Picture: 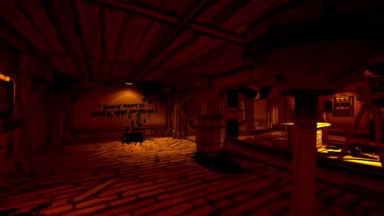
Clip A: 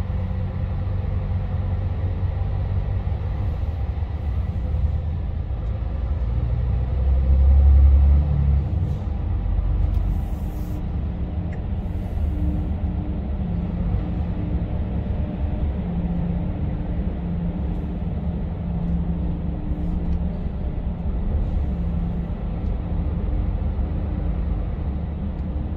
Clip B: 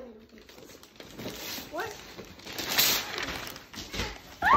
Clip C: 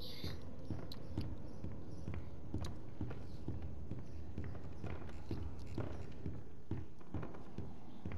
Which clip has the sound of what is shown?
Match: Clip C